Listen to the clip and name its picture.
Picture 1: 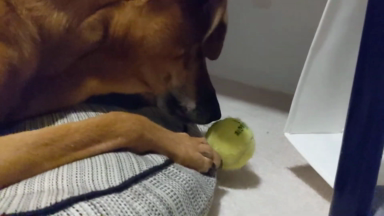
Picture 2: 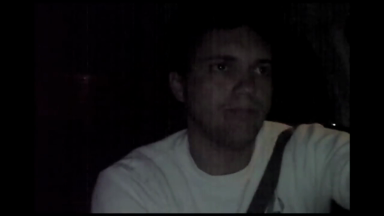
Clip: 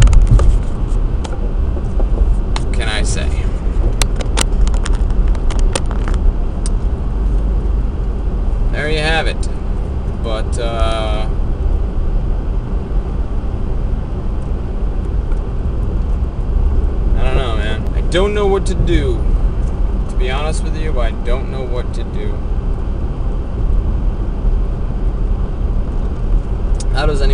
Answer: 2